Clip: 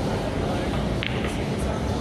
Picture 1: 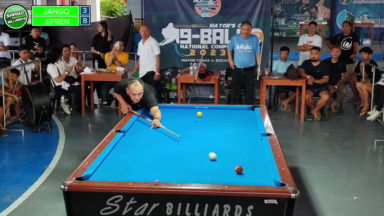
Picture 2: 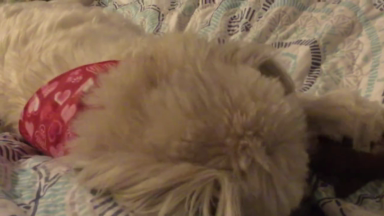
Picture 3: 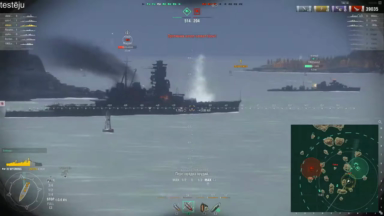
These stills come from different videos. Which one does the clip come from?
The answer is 1